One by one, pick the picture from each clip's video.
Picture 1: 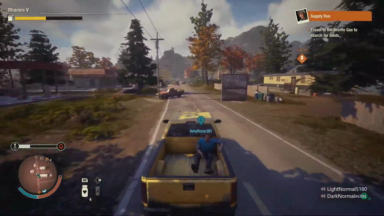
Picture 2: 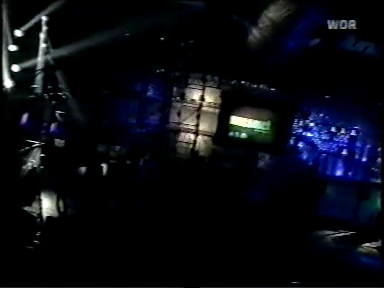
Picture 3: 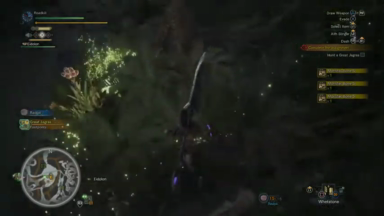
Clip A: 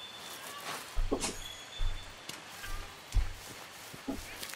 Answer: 3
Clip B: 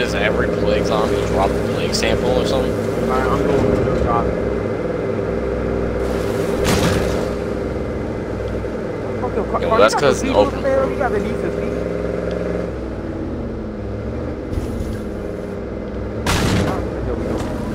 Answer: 1